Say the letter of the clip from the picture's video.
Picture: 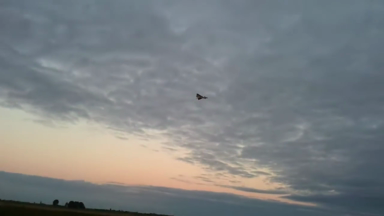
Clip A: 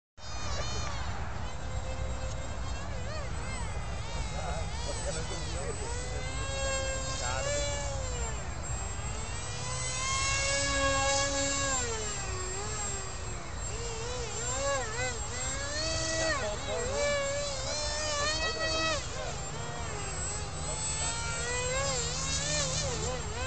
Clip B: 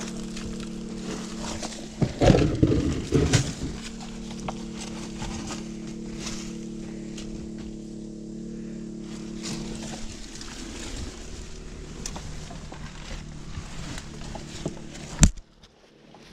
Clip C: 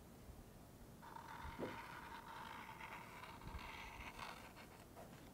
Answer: A